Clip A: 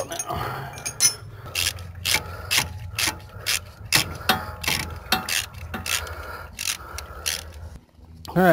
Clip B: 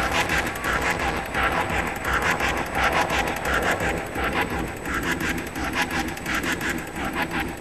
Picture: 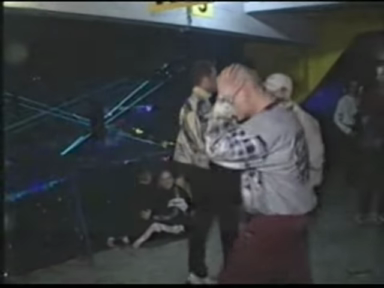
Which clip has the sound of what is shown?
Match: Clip B